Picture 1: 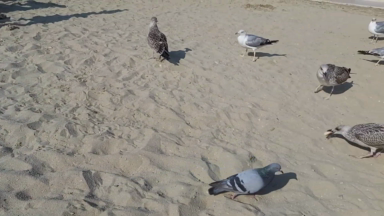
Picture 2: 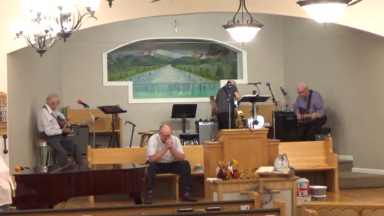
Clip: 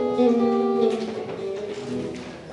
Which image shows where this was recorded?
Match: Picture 2